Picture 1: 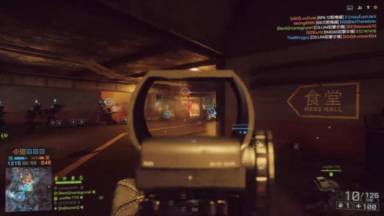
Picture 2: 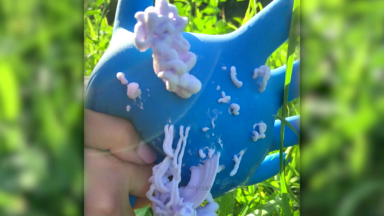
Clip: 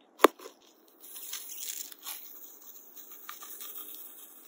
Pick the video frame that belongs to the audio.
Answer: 2